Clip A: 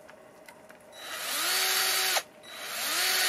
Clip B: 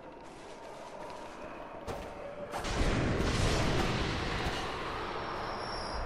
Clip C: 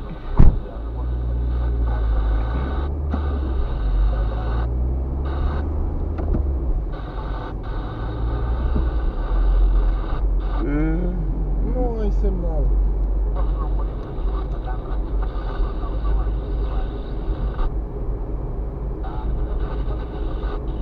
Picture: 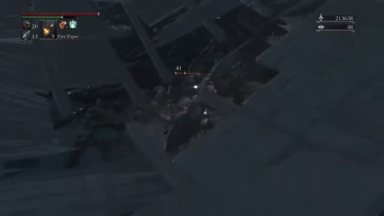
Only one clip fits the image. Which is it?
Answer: B